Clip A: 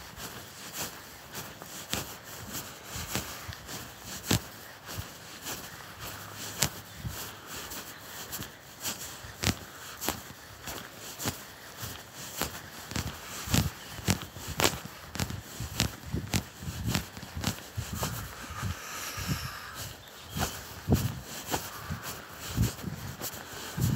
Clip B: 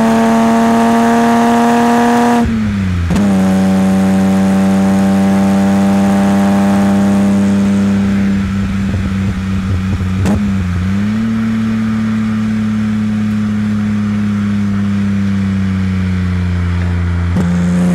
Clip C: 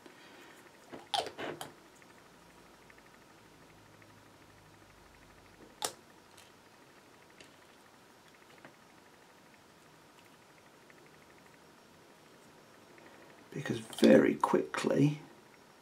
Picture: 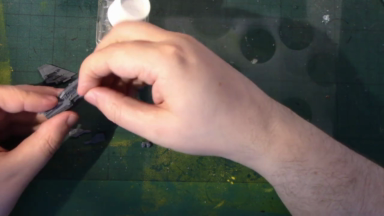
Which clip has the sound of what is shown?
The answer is C